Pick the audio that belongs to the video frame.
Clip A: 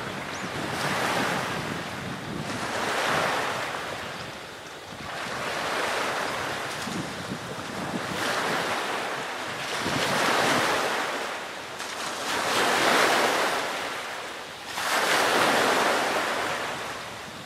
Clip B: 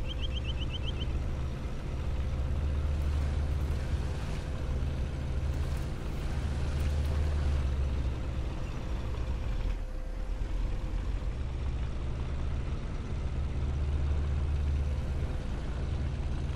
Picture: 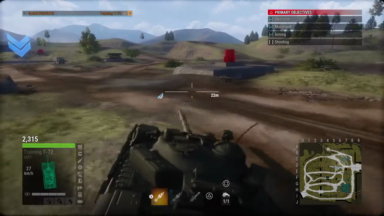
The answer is B